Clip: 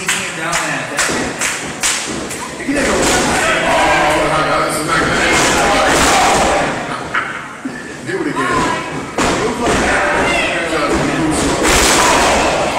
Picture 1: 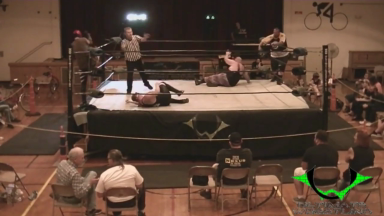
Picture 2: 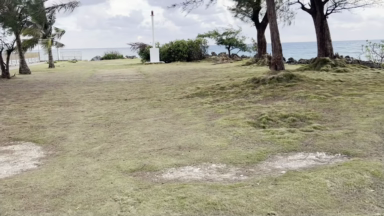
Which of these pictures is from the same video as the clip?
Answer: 1